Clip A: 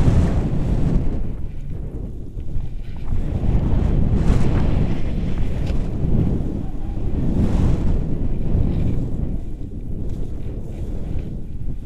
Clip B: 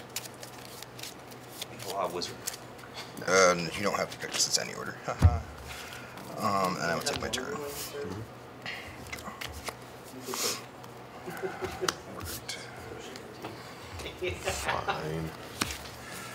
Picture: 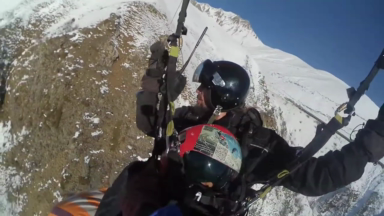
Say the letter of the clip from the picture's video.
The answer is A